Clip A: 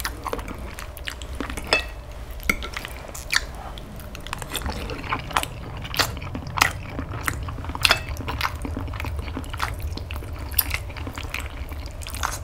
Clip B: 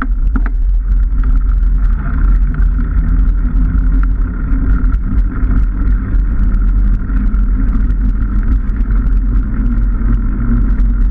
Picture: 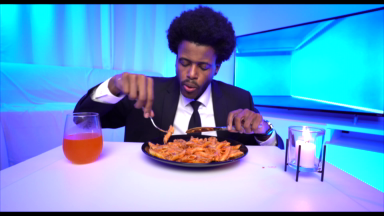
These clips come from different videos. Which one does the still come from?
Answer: A